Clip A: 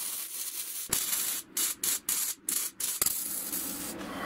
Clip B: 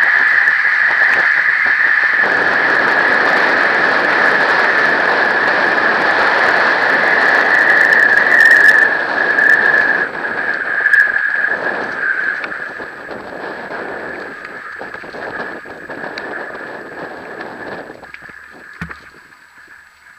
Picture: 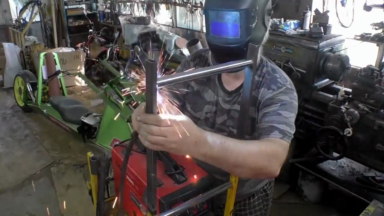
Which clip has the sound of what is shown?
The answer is A